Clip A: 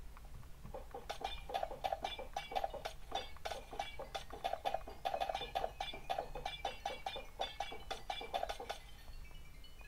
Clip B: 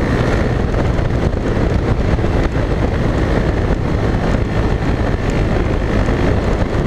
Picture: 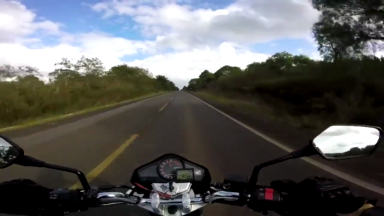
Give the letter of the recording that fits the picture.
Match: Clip B